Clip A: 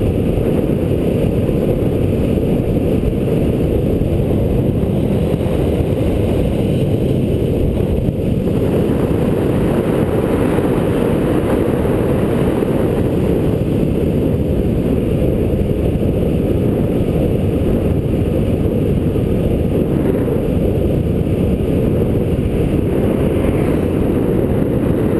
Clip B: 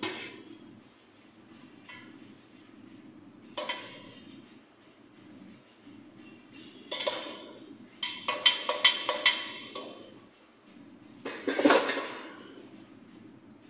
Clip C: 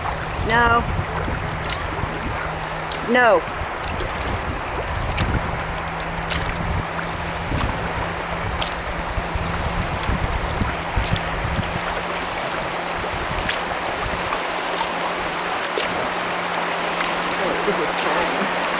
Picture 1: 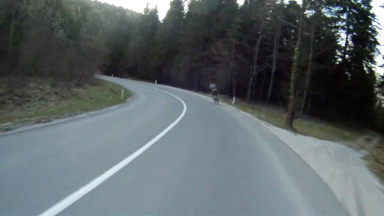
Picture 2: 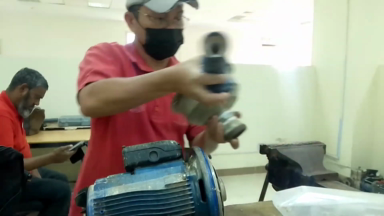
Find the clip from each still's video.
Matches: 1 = A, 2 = B